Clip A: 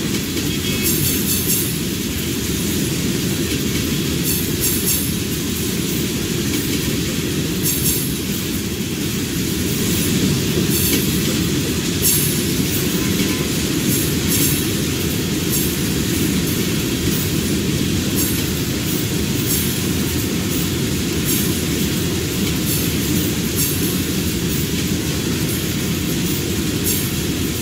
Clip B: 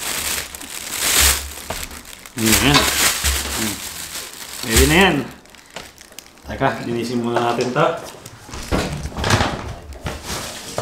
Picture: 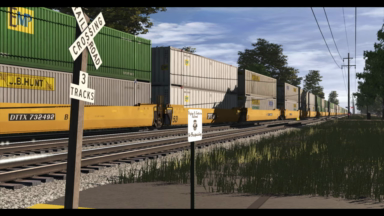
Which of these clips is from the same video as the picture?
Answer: A